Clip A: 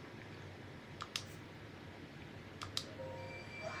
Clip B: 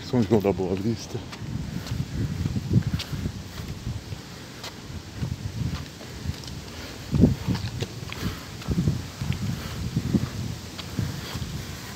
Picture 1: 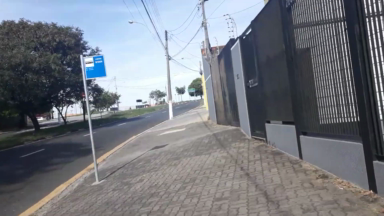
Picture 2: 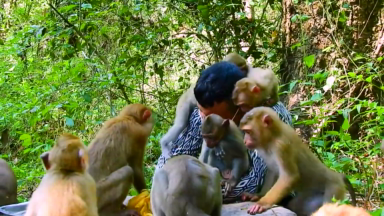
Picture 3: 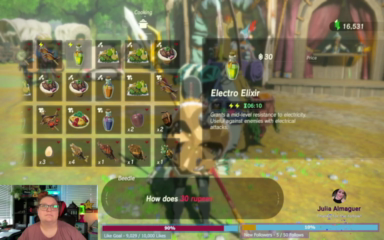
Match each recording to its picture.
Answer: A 3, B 1